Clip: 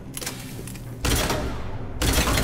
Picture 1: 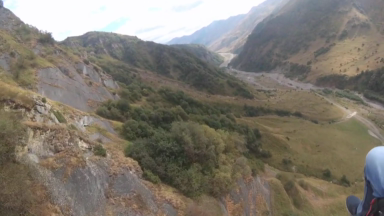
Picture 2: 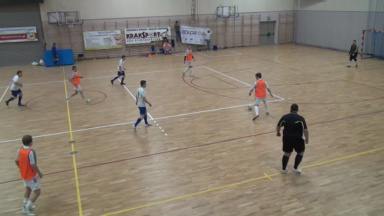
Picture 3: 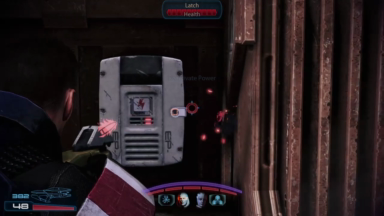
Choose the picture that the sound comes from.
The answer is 3